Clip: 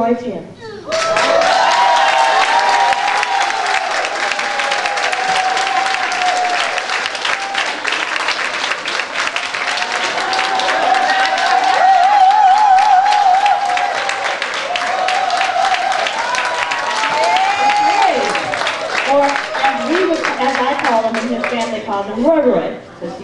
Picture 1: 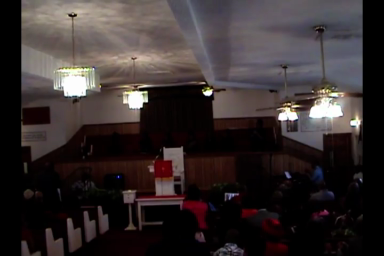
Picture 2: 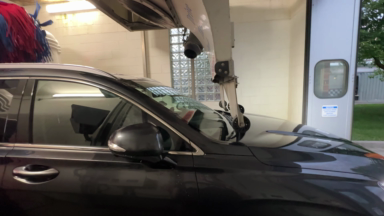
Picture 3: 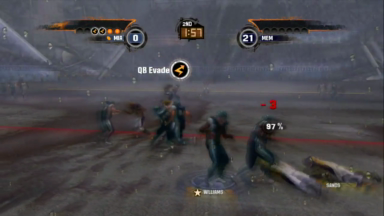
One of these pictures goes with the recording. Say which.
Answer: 1